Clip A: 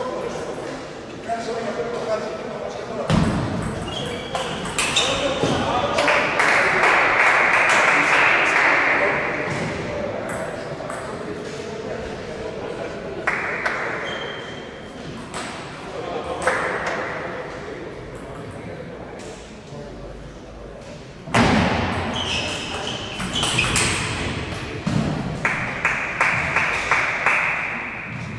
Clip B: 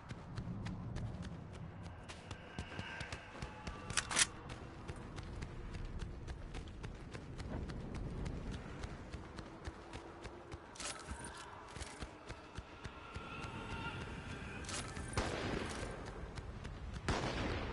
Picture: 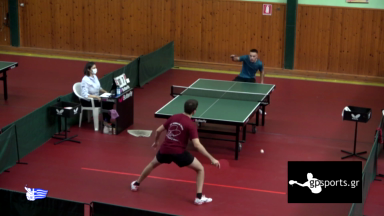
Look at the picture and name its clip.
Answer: A